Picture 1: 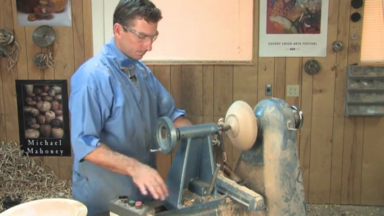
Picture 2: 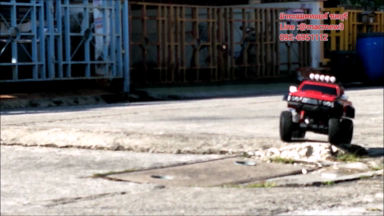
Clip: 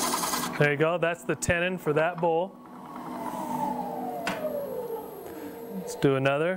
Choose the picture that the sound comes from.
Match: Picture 1